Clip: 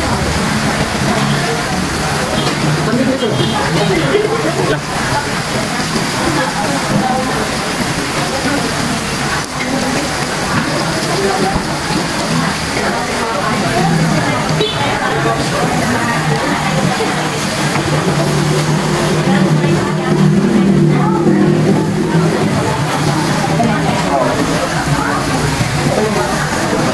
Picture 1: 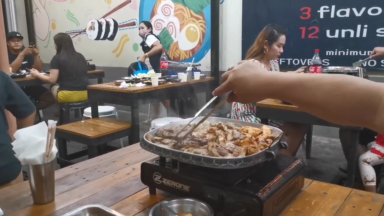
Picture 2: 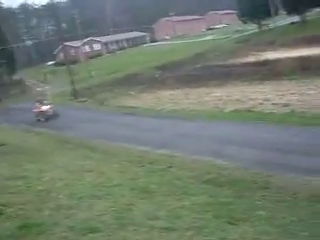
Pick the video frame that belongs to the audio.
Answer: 1